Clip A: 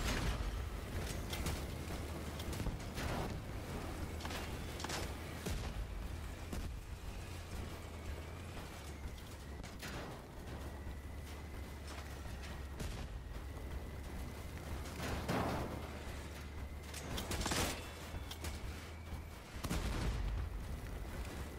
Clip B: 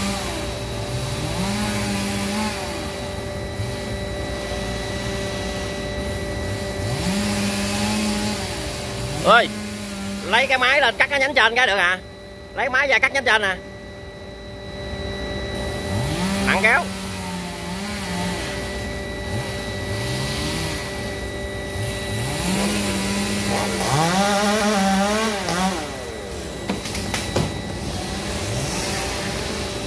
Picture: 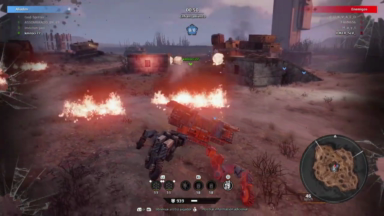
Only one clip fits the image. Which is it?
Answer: A